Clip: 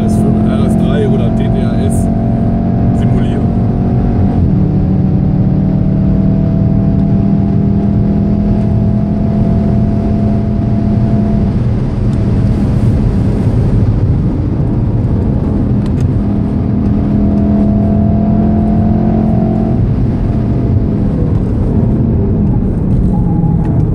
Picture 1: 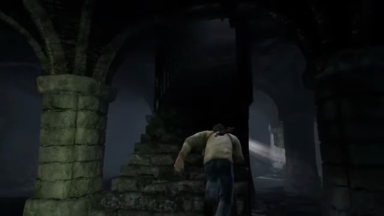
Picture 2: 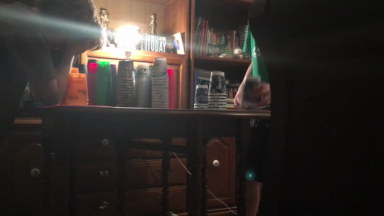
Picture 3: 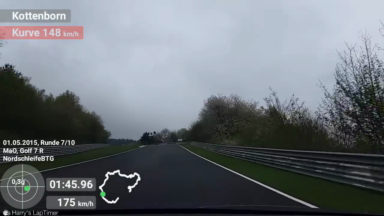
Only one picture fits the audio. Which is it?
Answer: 3